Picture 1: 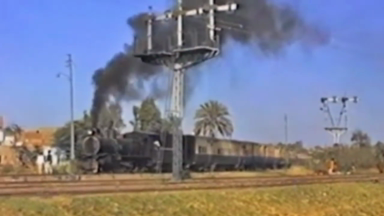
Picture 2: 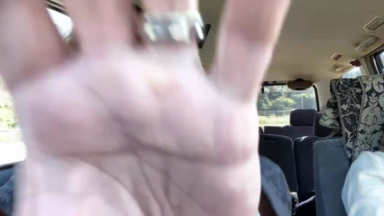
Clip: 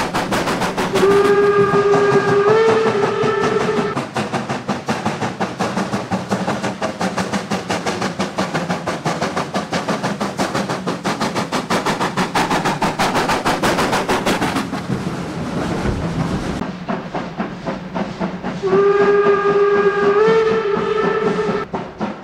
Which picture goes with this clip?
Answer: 1